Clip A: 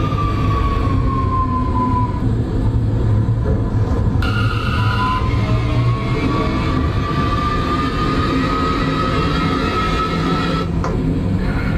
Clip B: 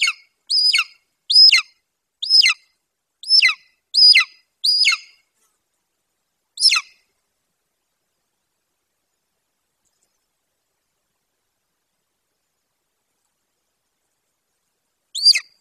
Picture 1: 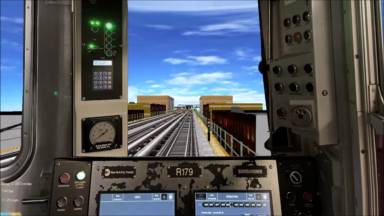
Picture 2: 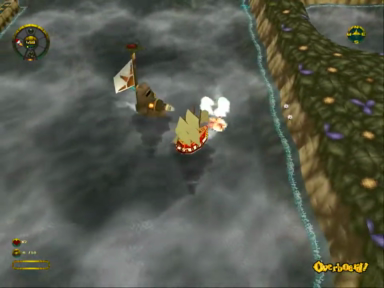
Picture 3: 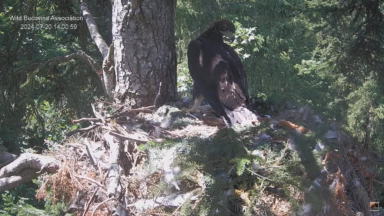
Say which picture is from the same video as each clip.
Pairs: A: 1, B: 3